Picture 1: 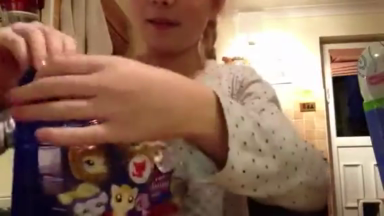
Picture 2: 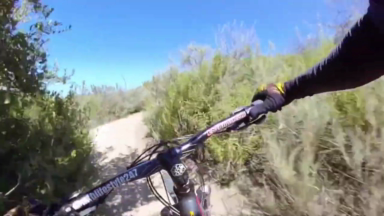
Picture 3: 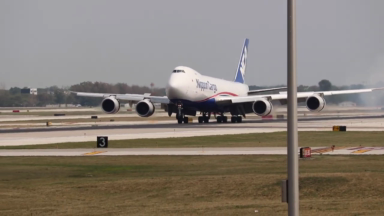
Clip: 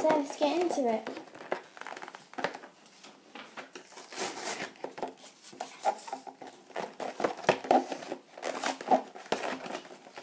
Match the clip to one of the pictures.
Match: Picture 1